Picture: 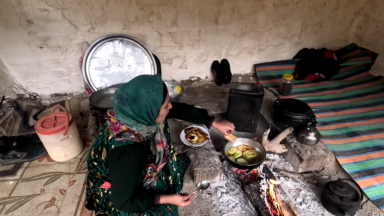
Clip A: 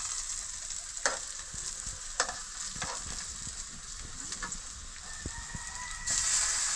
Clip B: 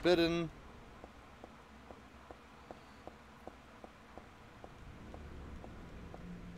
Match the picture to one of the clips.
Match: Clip A